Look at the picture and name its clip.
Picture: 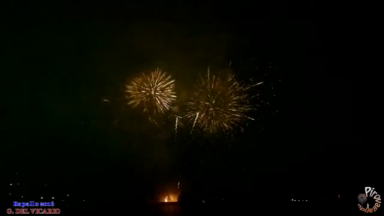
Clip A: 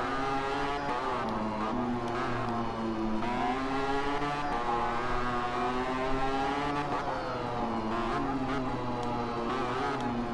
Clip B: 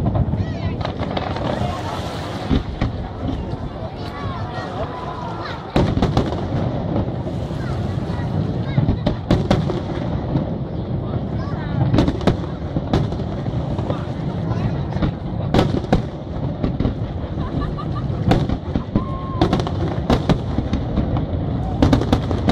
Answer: B